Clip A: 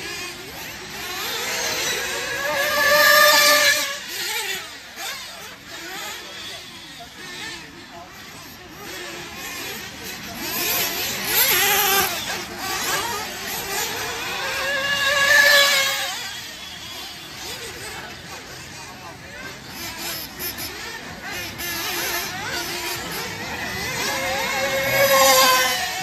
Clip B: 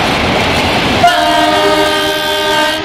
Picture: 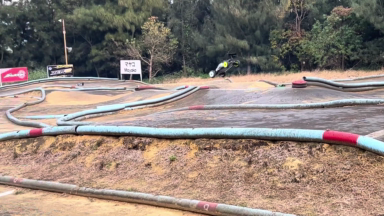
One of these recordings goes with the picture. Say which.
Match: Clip A